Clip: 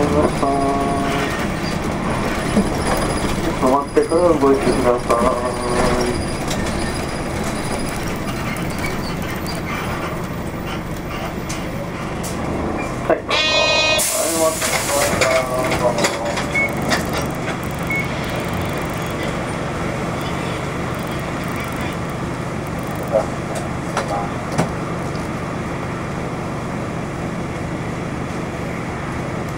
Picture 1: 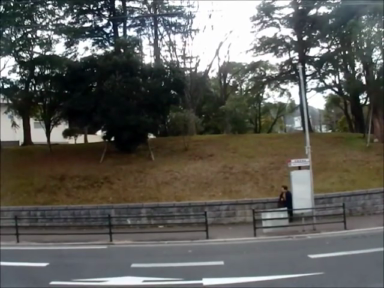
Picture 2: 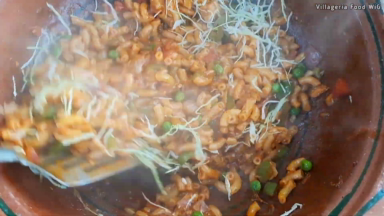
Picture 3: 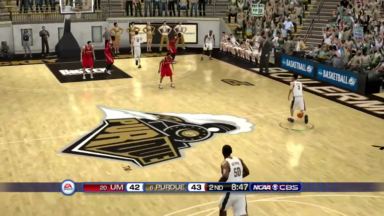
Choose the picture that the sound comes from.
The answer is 1